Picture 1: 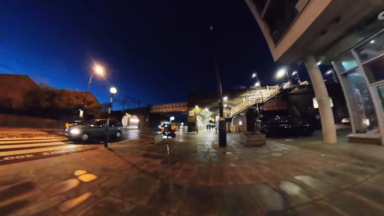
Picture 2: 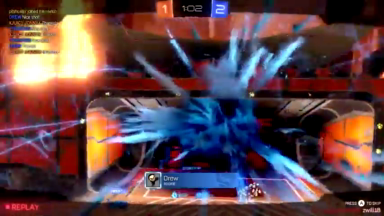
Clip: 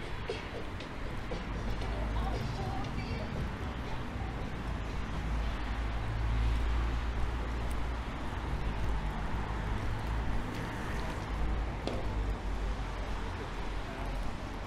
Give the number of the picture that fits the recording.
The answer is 1